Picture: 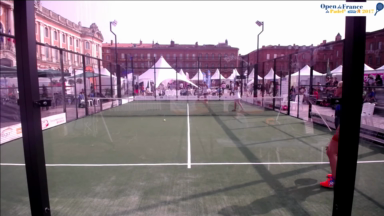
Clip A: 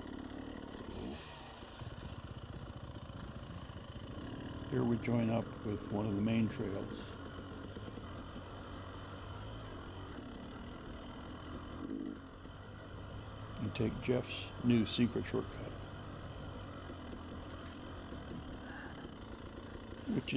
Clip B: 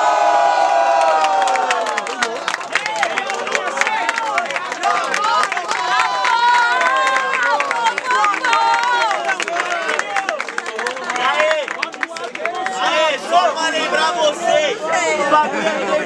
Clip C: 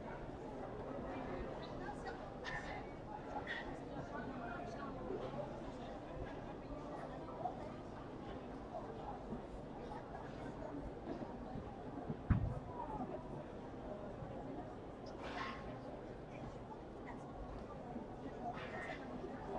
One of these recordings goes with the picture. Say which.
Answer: C